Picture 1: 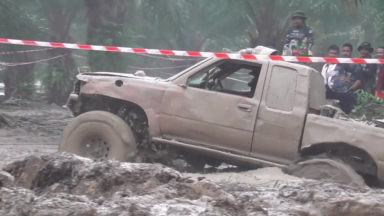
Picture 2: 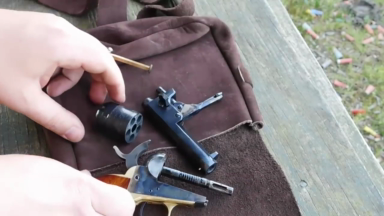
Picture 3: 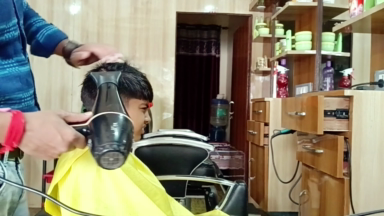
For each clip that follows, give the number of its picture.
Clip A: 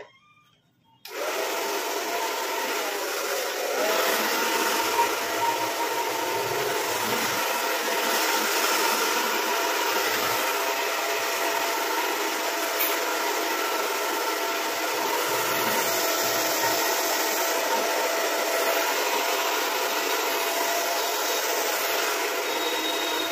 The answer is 3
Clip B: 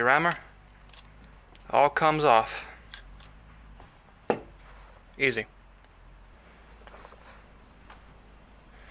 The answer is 2